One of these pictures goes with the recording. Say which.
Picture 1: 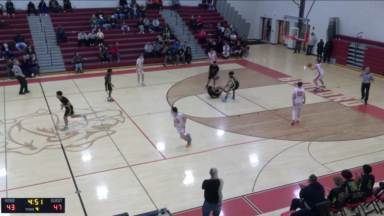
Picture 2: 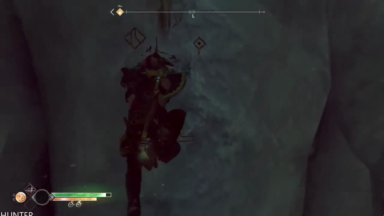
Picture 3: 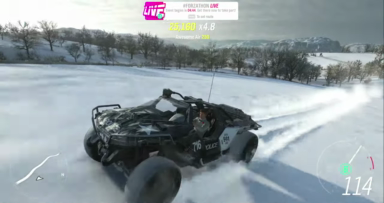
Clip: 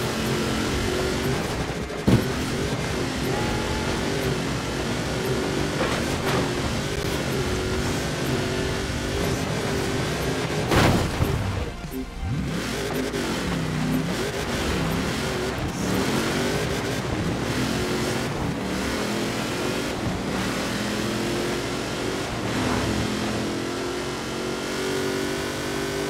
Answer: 3